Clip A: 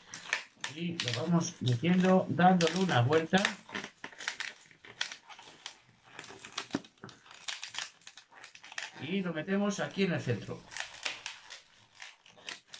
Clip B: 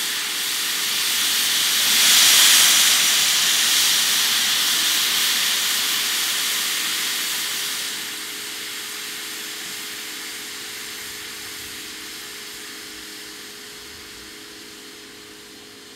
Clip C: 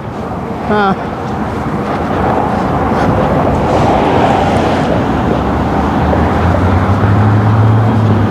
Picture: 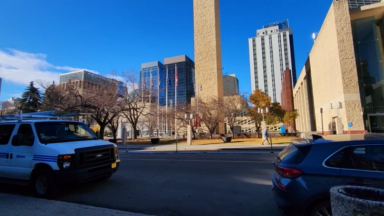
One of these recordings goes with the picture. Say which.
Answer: C